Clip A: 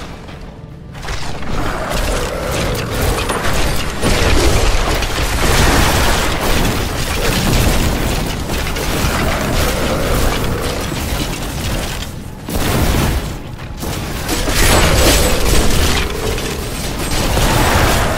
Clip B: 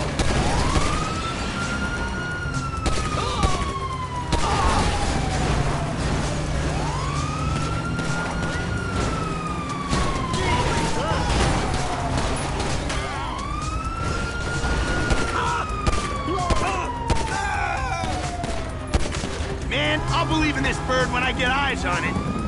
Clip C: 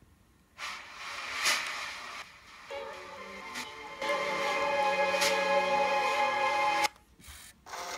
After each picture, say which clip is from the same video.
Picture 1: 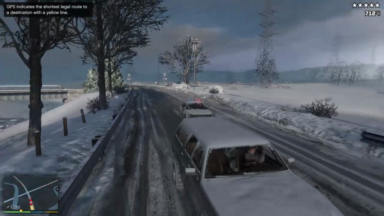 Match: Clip B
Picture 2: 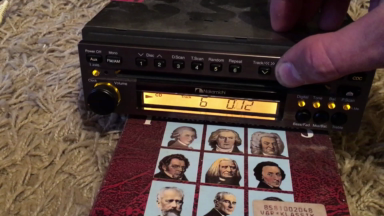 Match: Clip C